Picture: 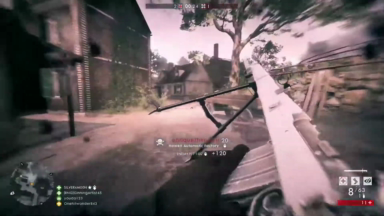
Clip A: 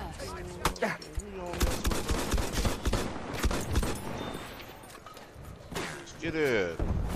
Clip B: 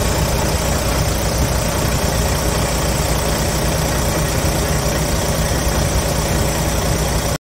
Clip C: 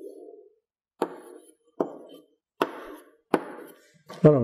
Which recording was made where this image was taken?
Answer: A